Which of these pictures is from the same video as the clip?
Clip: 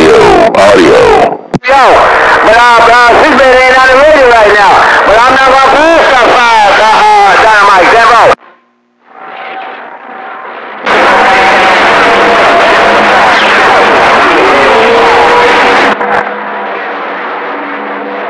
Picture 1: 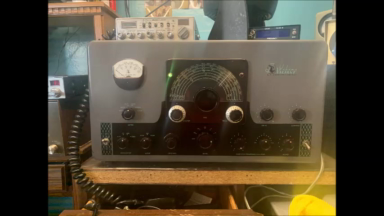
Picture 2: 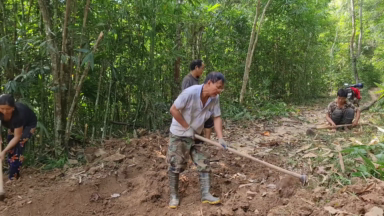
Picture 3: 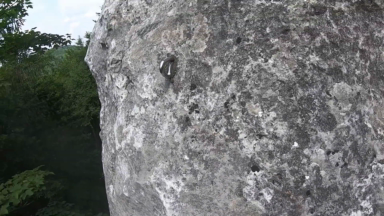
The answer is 1